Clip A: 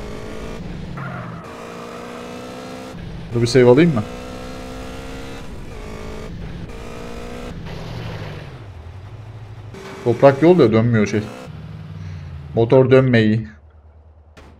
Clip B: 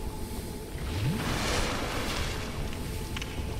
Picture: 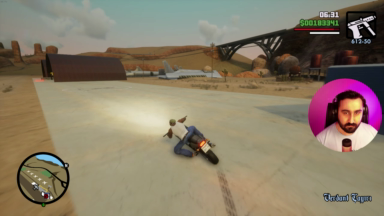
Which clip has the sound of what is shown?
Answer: A